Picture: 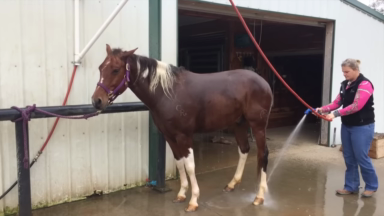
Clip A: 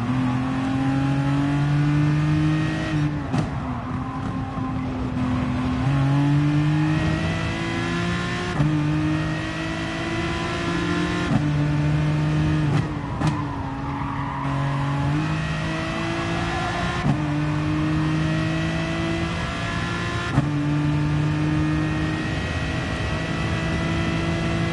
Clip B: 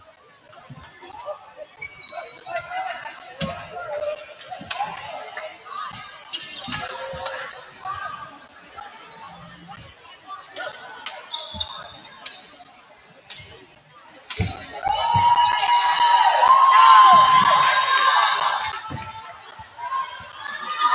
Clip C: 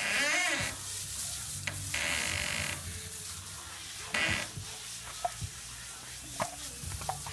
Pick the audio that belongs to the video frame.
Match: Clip C